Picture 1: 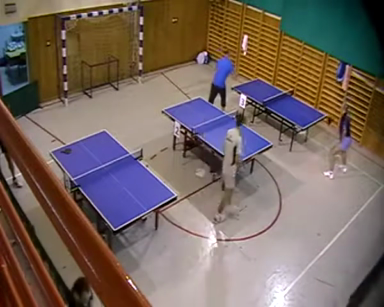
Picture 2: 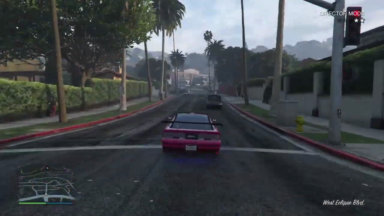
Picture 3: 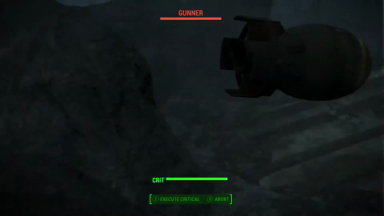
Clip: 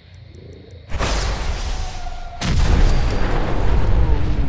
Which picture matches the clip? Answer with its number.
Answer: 3